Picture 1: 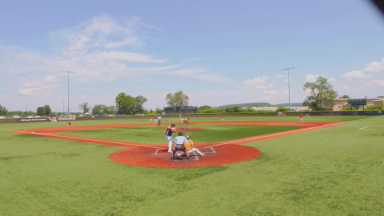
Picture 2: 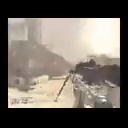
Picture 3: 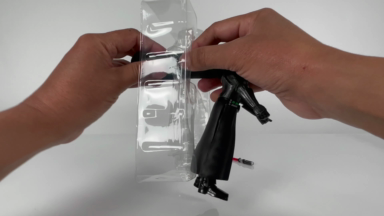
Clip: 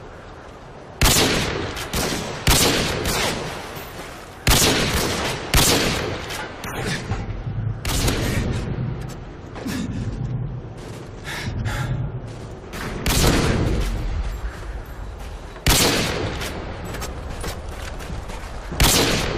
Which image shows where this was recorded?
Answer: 2